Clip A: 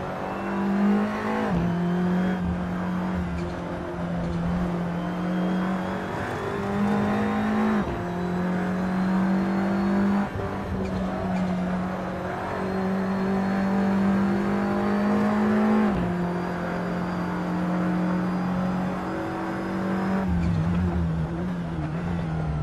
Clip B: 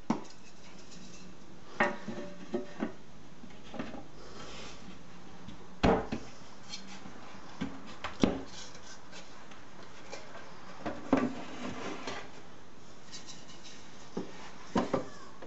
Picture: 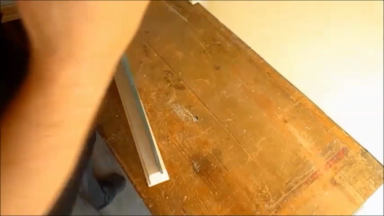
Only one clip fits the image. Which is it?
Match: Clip B